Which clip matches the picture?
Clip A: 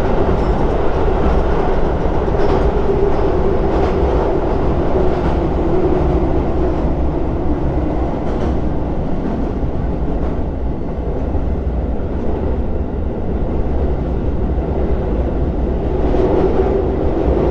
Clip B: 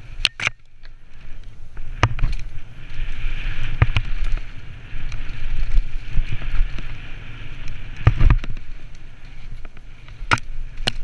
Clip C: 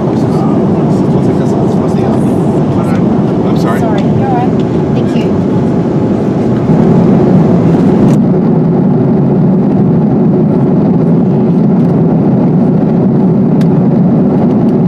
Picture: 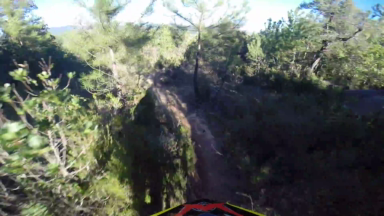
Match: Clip B